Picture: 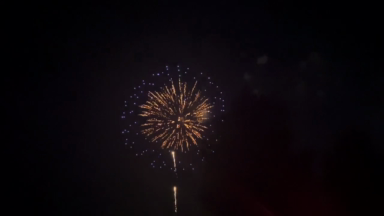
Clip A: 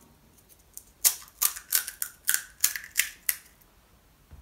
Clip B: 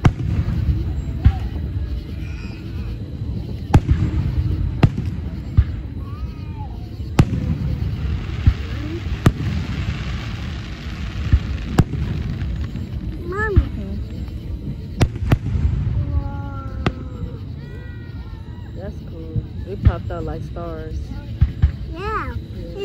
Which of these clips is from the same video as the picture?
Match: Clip B